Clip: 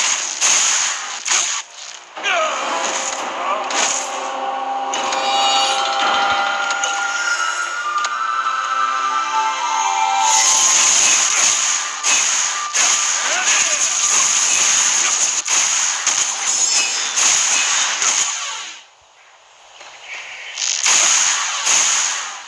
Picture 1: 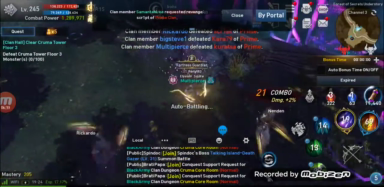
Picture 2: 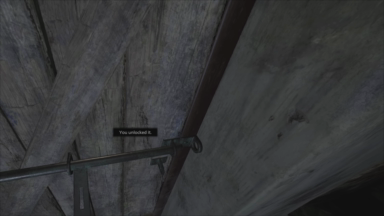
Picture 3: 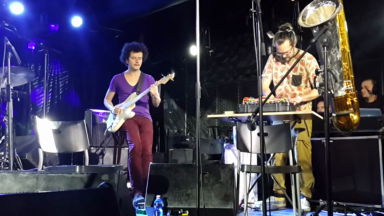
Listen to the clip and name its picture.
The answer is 1